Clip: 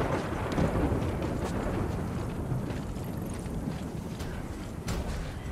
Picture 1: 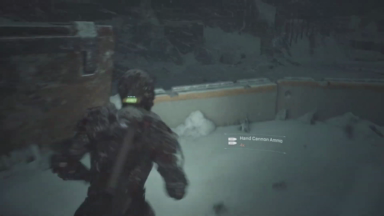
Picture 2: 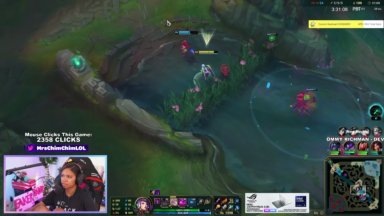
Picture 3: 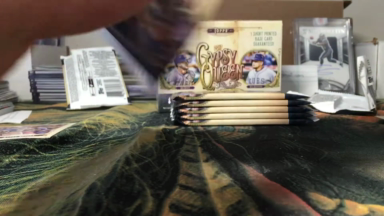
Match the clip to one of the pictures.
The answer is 1